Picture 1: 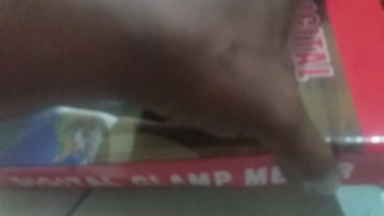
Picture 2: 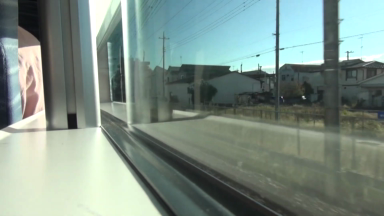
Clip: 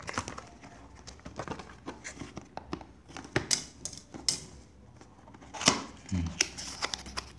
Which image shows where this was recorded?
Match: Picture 1